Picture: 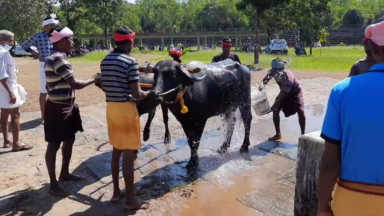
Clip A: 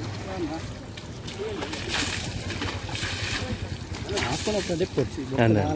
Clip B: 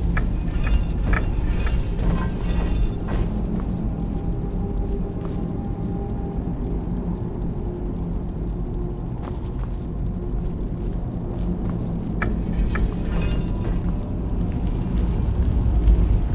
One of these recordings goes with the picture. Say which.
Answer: A